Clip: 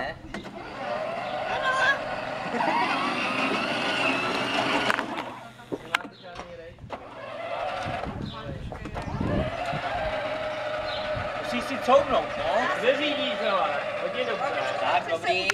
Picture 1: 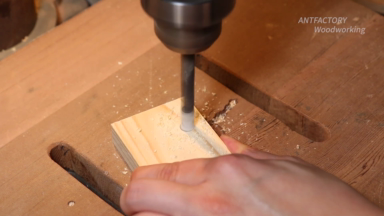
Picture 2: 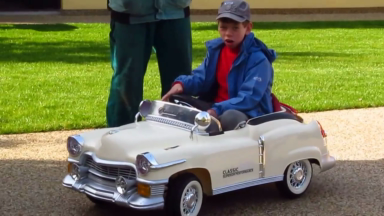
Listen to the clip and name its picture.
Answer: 2